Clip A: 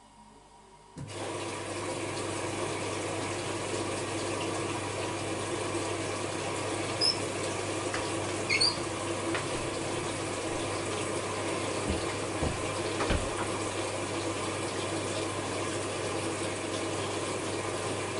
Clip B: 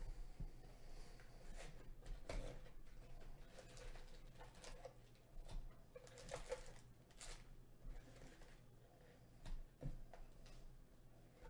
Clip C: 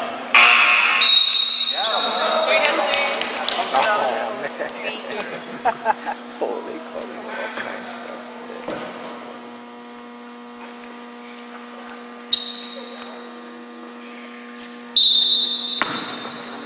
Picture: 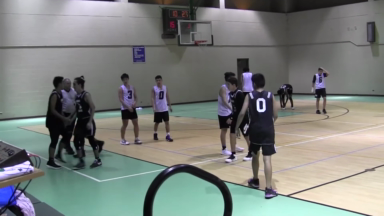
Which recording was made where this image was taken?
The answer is C